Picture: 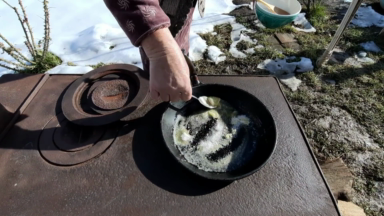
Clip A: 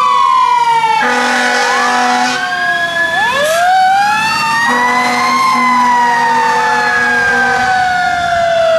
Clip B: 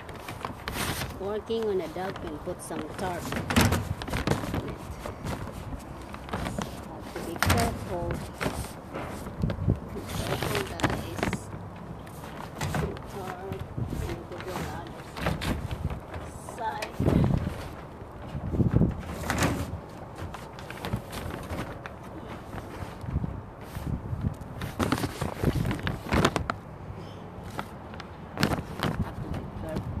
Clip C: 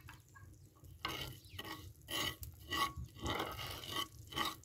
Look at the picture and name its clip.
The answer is C